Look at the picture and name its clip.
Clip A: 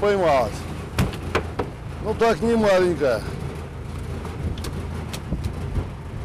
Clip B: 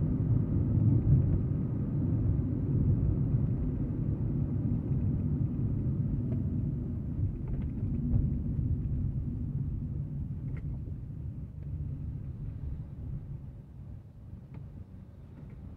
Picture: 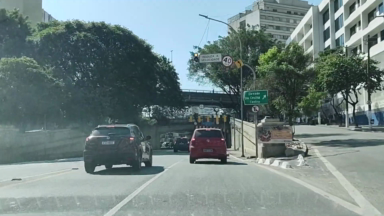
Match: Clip B